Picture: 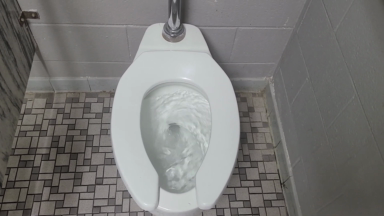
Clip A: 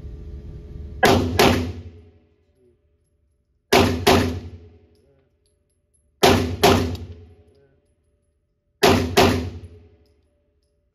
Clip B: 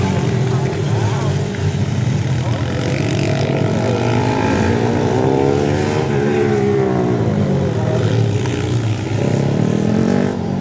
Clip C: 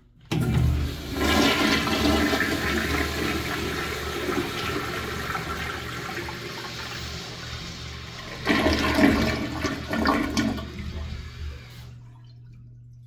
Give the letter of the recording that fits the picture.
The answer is C